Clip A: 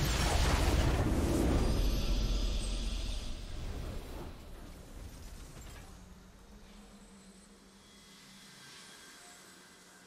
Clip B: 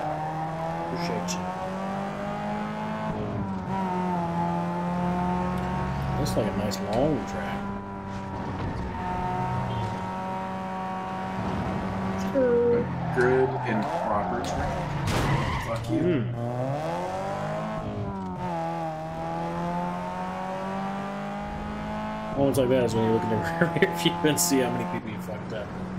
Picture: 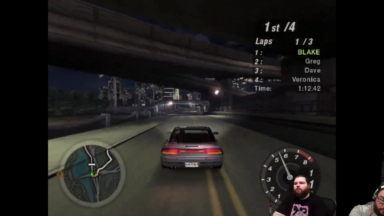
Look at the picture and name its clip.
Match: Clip B